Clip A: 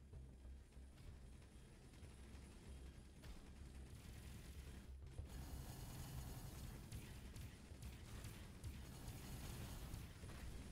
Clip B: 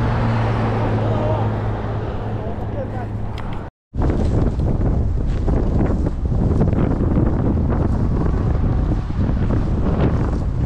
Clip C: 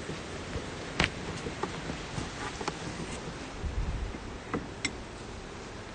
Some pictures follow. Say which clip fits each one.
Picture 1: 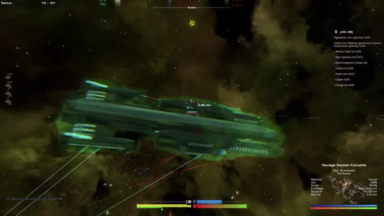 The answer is A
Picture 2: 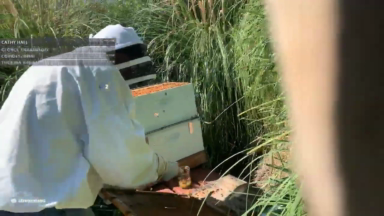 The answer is C